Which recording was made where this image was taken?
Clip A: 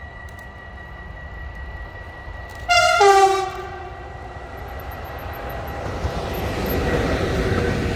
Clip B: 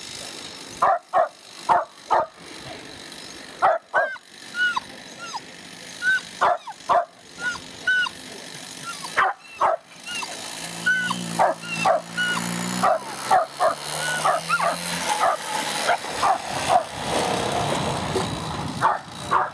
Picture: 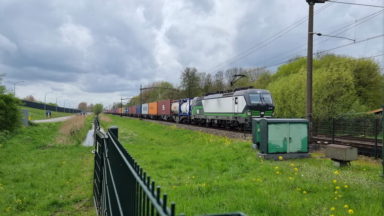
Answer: A